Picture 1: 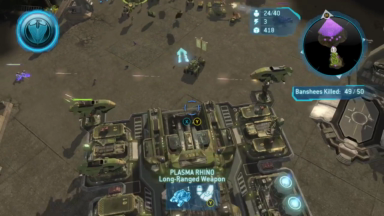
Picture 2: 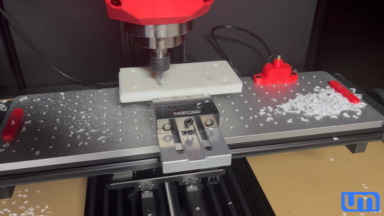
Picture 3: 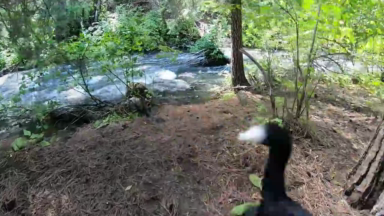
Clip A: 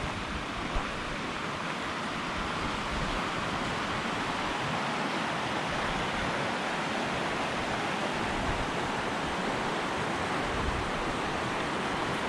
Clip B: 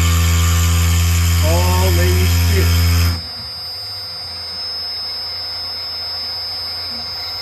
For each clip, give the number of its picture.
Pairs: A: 3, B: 2